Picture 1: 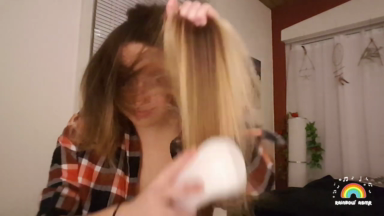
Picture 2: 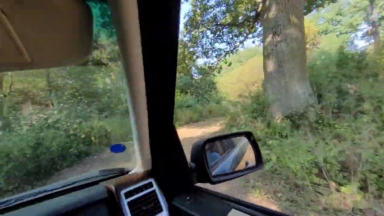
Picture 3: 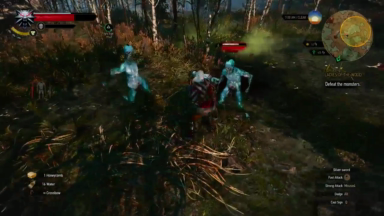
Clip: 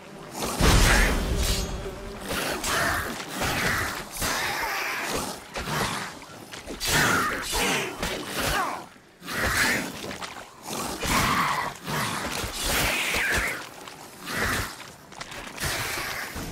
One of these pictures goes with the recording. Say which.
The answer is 3